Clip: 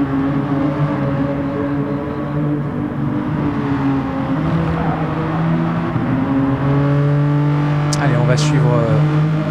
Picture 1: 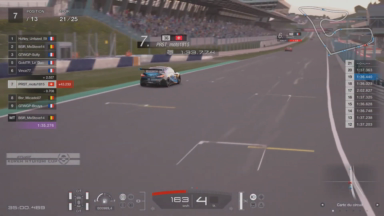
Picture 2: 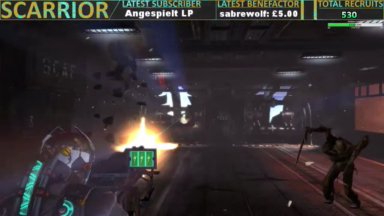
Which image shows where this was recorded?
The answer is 1